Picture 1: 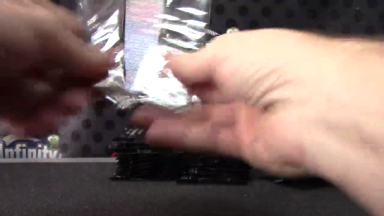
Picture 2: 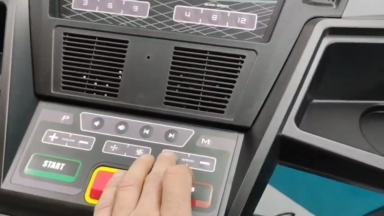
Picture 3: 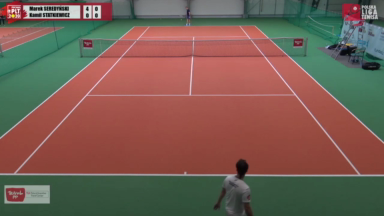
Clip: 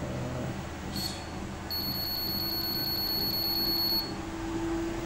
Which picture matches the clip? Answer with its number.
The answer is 2